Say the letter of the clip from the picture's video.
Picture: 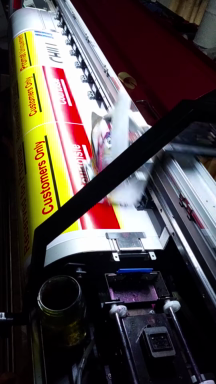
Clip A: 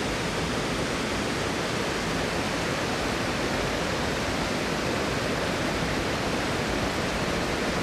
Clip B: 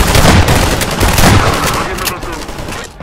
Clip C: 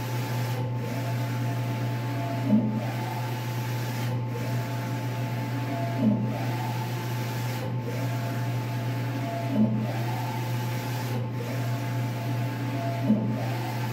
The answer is C